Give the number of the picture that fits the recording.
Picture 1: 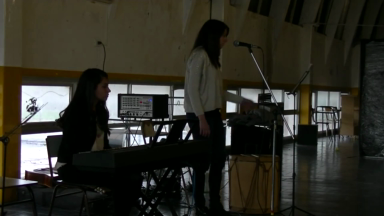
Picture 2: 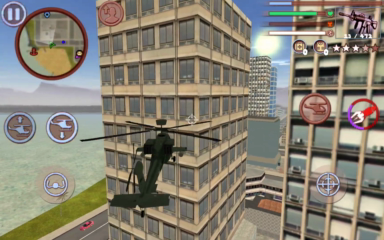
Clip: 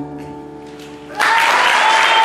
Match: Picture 1